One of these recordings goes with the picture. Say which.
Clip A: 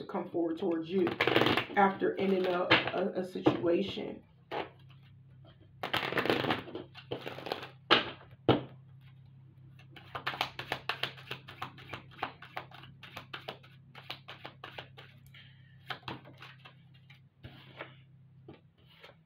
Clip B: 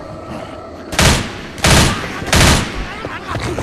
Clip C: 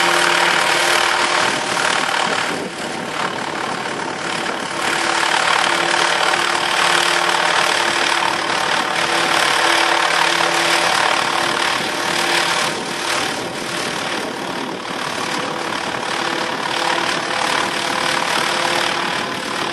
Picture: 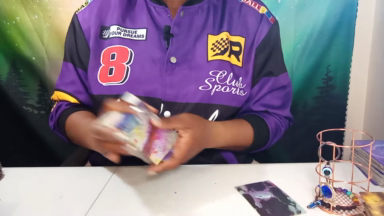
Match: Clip A